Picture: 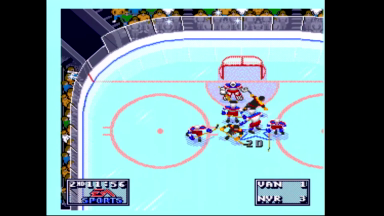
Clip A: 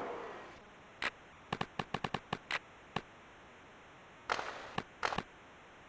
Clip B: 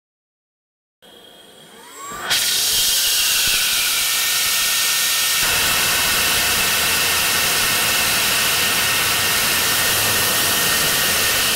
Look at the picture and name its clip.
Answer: A